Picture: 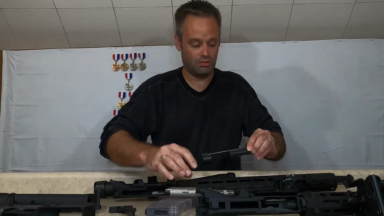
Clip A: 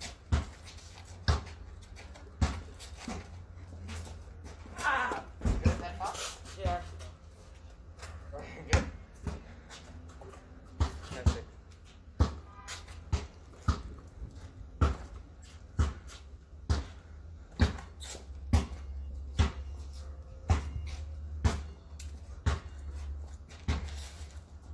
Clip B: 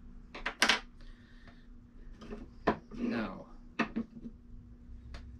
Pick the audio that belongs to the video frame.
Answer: B